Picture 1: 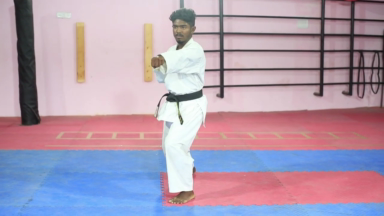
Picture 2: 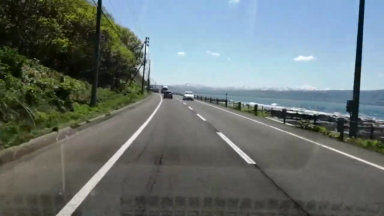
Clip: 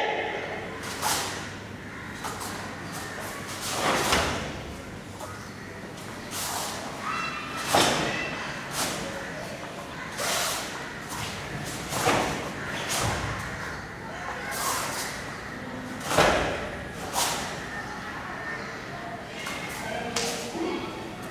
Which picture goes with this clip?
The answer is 1